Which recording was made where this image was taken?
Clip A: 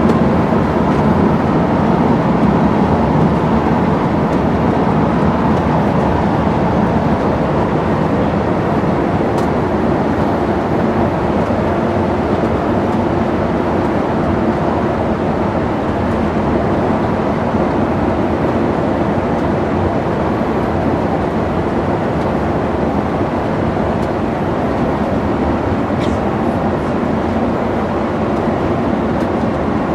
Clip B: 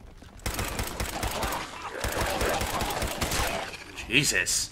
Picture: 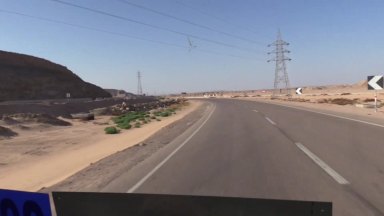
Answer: A